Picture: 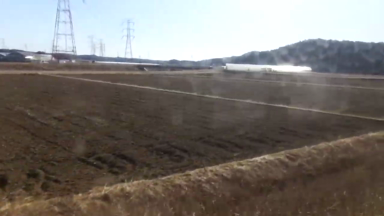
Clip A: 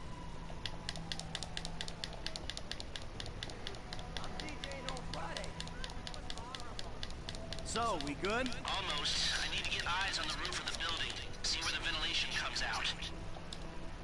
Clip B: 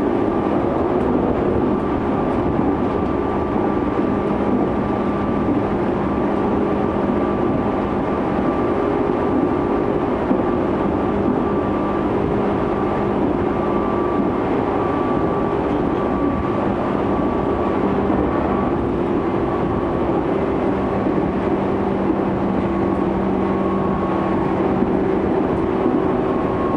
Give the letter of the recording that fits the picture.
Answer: B